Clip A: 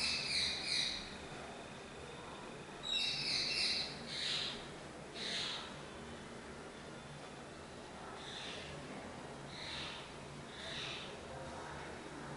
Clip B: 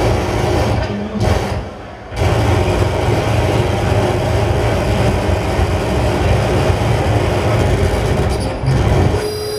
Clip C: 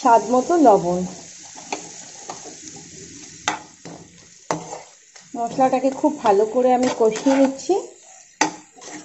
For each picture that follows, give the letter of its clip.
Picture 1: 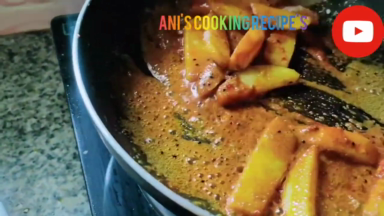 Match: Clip C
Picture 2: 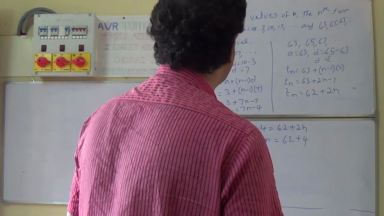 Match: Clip A